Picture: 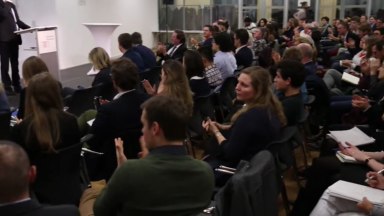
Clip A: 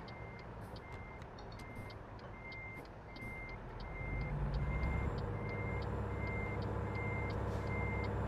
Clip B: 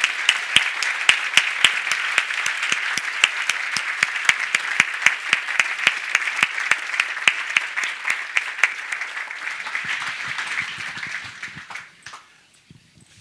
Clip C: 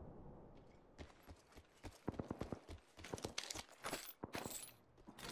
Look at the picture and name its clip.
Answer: B